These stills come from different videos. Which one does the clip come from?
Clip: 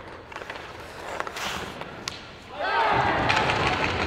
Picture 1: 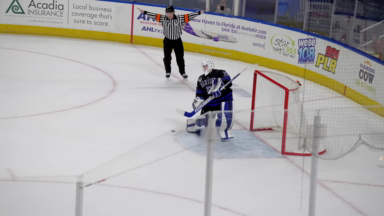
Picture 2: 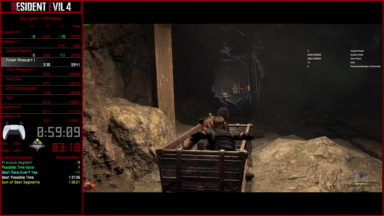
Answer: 1